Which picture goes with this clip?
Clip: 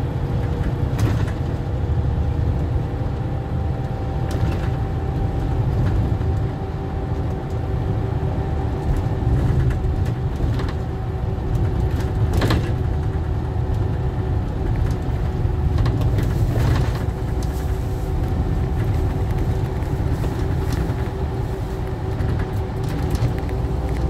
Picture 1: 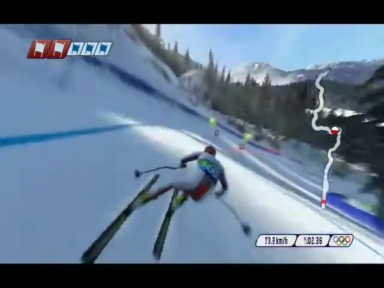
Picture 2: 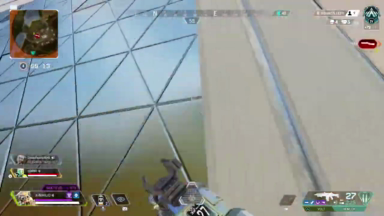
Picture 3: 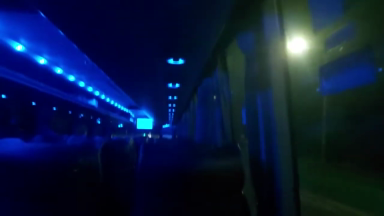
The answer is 3